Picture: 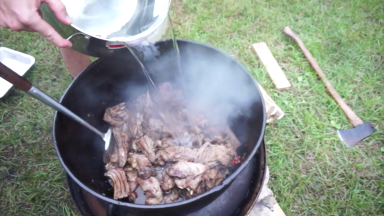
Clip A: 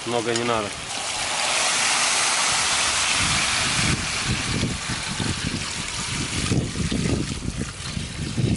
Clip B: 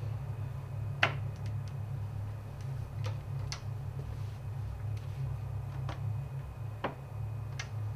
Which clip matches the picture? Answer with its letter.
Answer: A